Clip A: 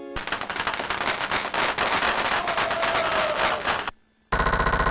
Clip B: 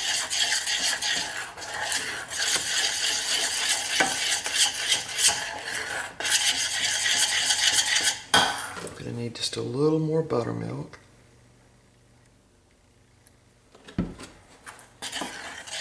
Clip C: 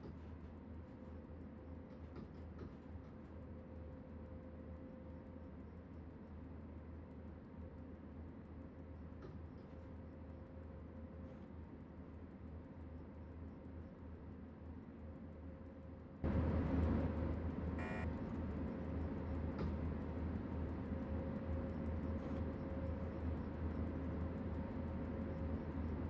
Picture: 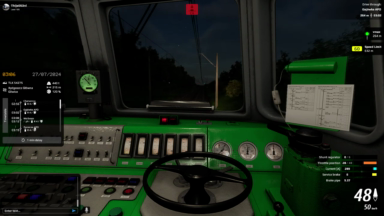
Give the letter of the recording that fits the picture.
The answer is C